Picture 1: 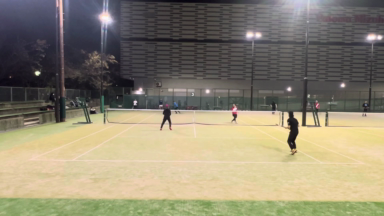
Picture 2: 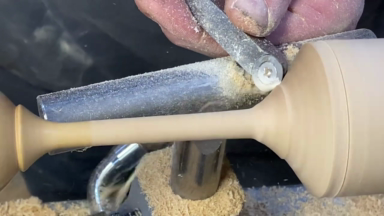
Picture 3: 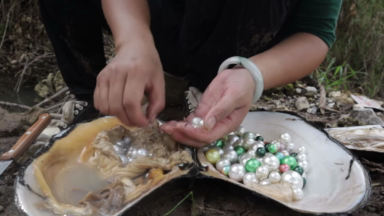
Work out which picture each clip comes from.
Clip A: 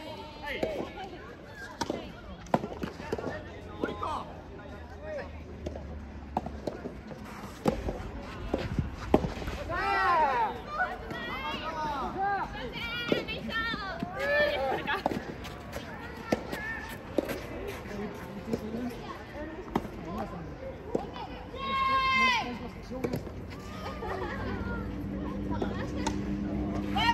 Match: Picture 1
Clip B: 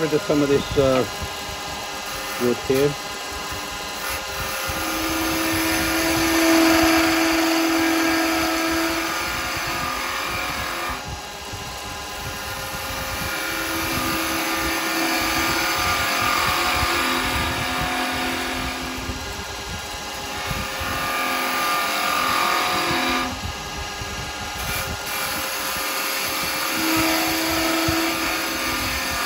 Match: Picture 2